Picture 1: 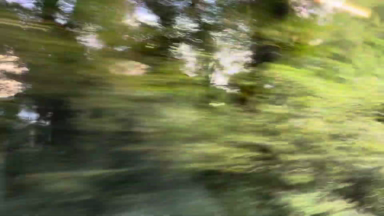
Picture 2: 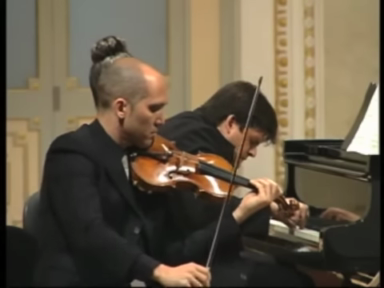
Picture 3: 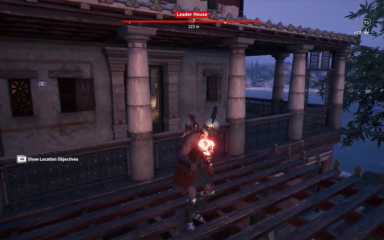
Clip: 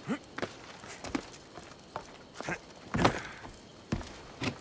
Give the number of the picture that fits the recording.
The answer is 3